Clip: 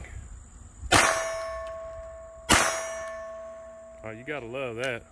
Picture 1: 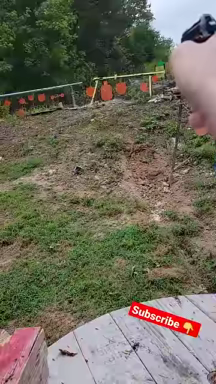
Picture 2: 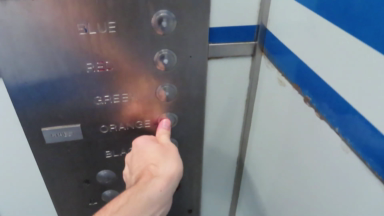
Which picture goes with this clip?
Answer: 1